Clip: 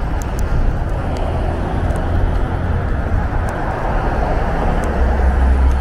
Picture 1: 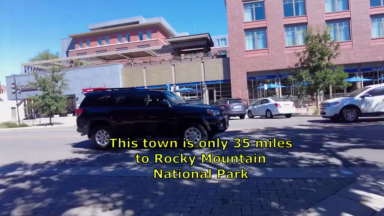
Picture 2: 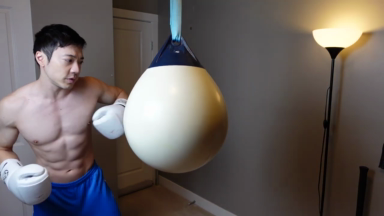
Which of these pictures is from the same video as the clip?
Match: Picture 1